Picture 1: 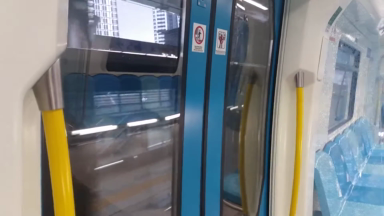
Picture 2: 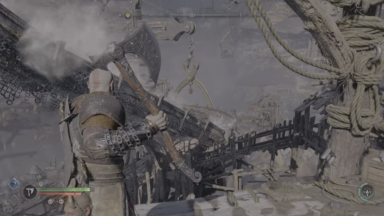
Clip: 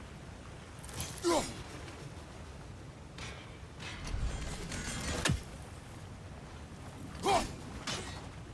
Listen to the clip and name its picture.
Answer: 2